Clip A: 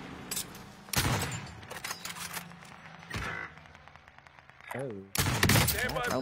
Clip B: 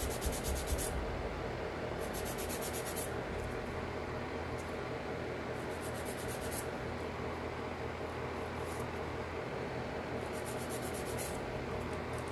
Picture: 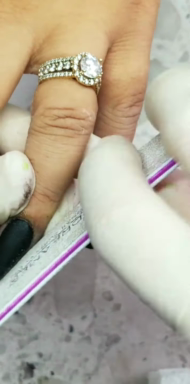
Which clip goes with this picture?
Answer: B